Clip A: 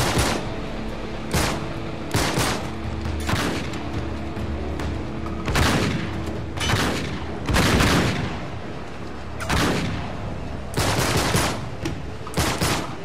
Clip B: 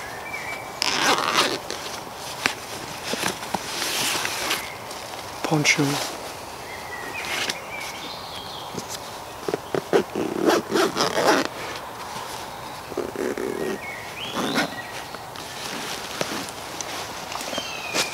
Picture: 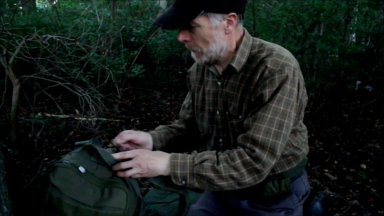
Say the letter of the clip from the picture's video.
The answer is B